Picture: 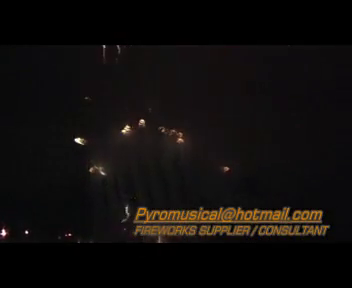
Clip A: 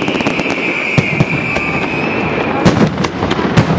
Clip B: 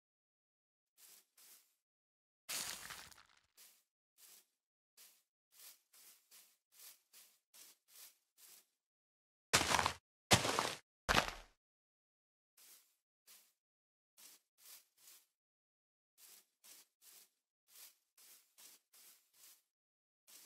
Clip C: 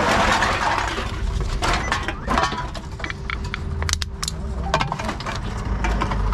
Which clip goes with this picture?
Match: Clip A